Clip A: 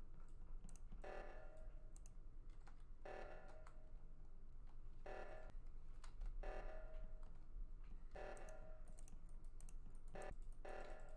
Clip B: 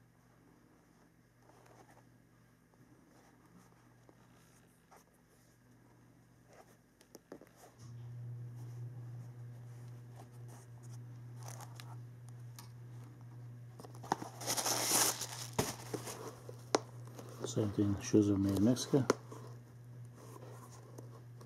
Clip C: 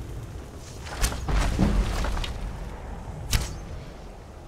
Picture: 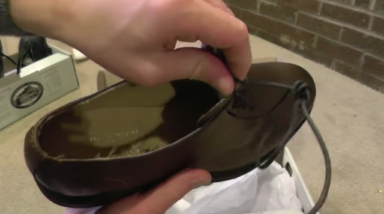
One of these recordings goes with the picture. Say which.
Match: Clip B